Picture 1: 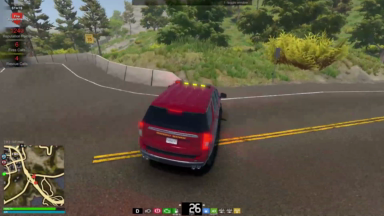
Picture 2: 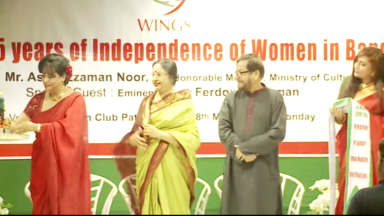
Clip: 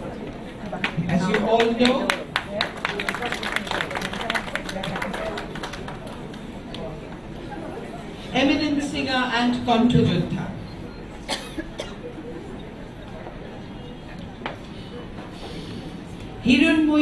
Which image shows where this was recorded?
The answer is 2